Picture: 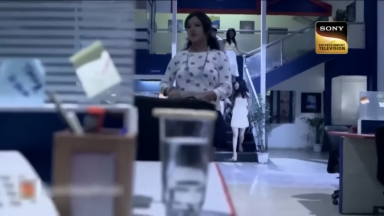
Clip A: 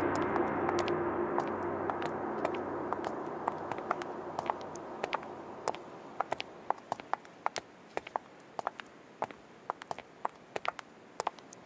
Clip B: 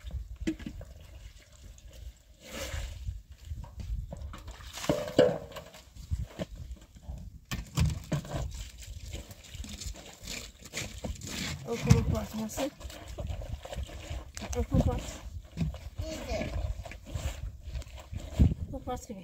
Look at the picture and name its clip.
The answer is A